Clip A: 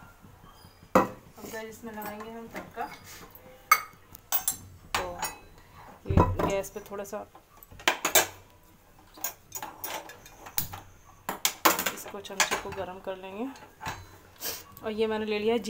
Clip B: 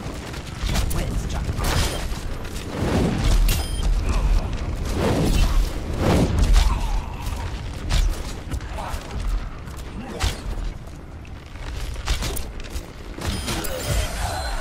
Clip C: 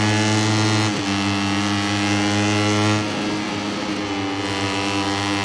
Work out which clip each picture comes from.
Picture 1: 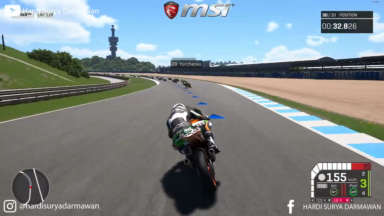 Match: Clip C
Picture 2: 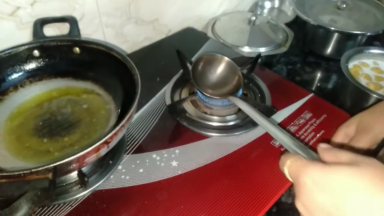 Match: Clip A